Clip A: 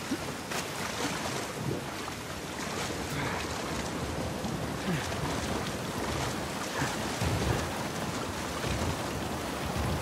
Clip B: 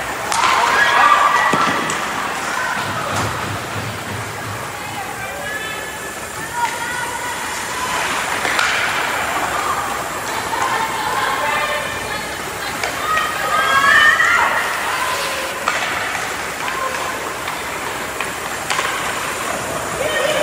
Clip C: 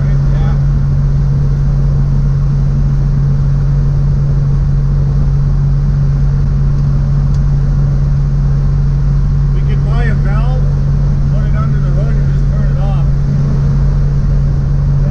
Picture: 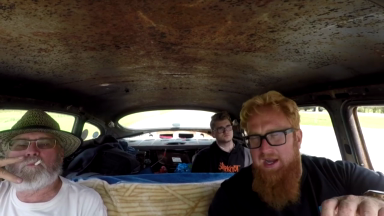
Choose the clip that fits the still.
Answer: C